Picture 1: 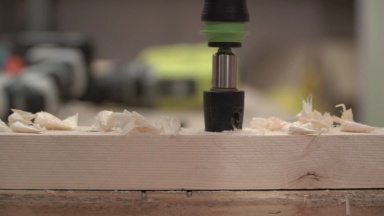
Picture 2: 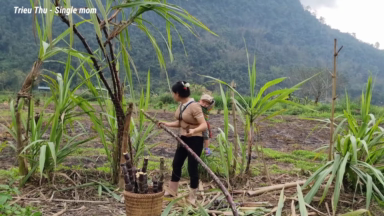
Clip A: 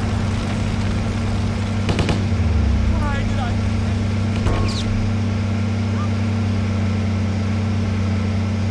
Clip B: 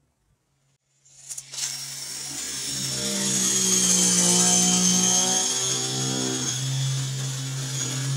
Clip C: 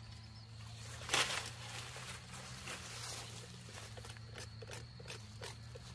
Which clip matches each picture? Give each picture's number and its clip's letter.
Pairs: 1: B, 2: C